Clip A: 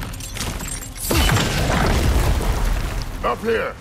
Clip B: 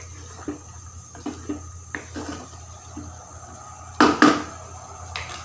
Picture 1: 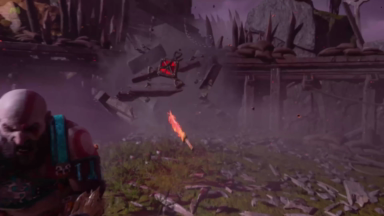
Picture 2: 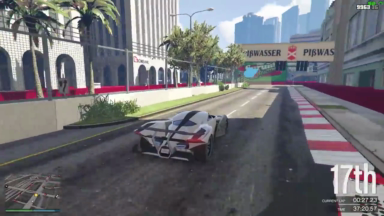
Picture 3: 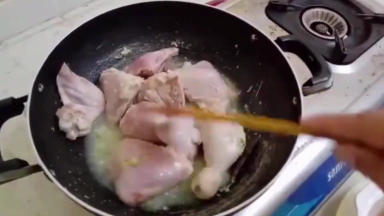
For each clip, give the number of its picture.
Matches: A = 1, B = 3